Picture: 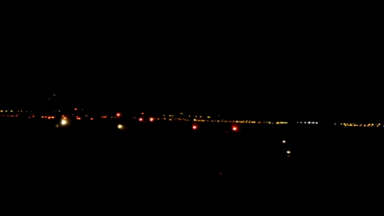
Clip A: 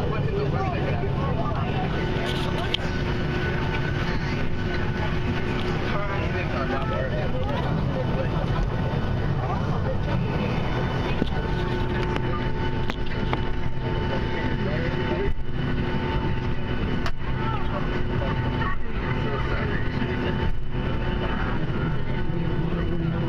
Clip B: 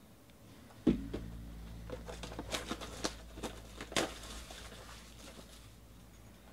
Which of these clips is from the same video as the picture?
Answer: A